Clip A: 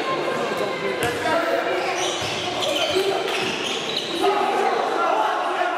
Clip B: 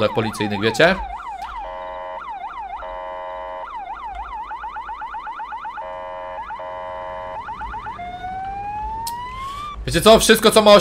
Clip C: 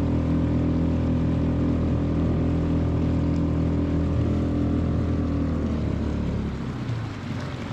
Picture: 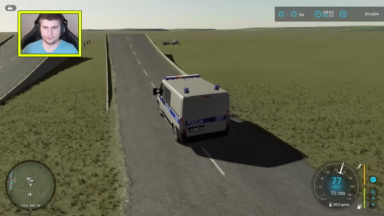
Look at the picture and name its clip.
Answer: B